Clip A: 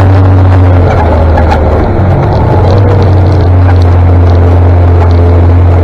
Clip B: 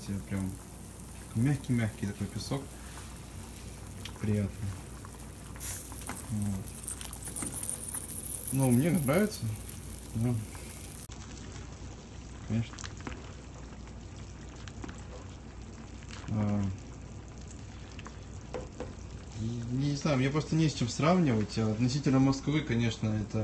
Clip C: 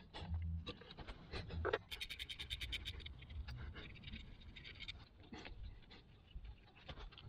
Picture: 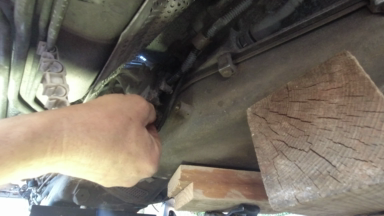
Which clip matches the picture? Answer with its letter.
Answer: C